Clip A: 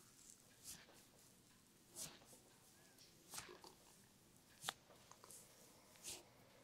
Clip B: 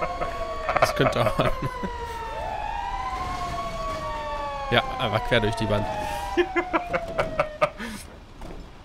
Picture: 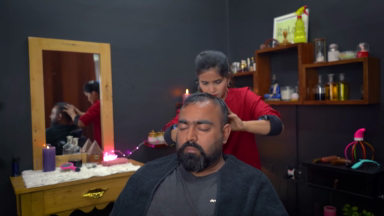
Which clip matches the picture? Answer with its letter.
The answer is A